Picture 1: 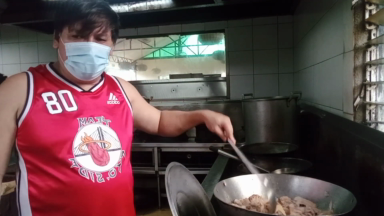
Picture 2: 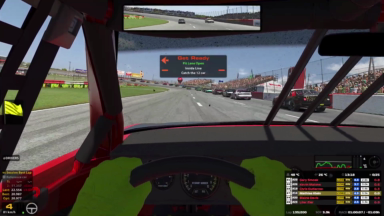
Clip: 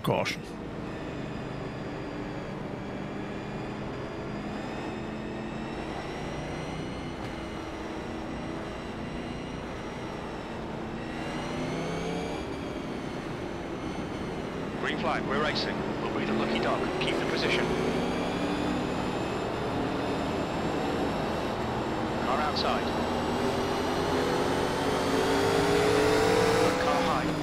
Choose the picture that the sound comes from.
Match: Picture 2